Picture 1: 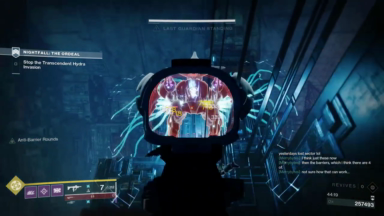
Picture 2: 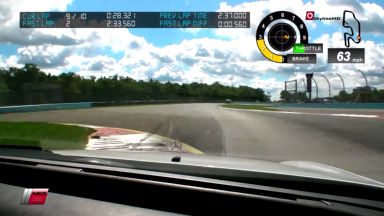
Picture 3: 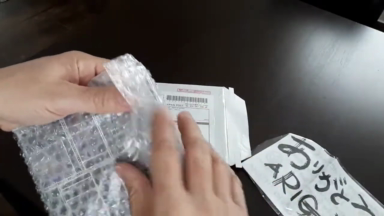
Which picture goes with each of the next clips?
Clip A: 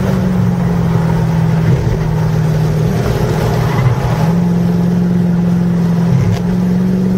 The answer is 2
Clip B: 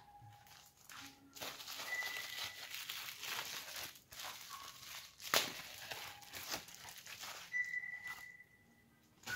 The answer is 3